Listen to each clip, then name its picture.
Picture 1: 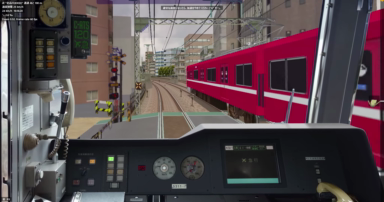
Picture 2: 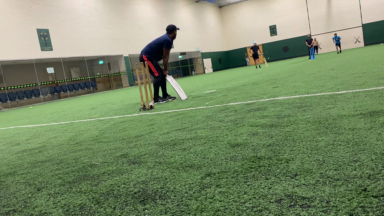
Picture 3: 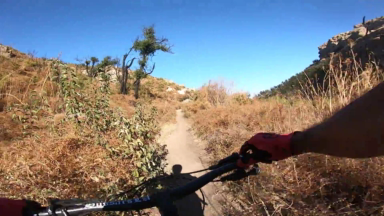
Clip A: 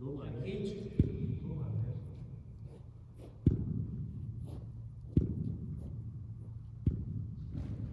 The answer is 2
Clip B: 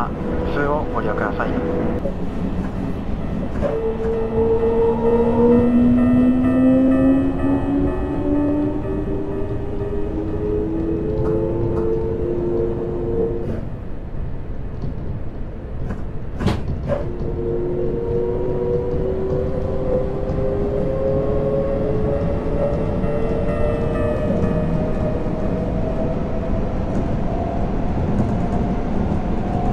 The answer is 1